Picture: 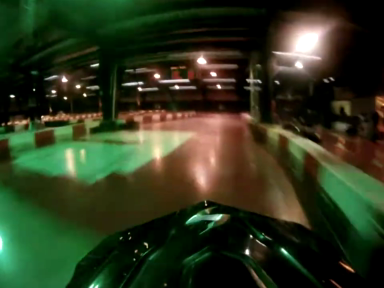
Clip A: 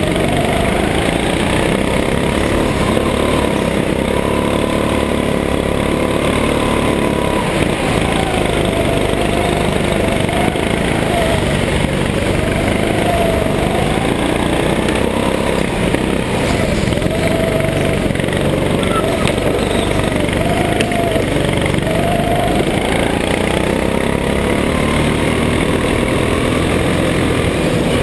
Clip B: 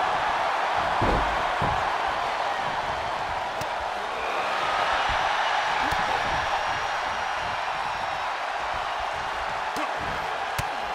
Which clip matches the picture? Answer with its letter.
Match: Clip A